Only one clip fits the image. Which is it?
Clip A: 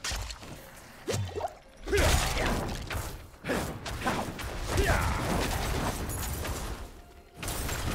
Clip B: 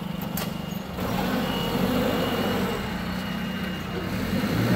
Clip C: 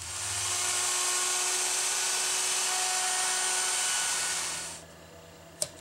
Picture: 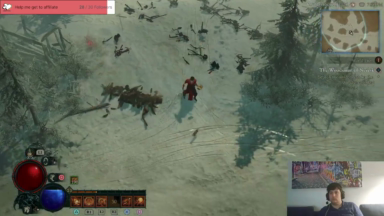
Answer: A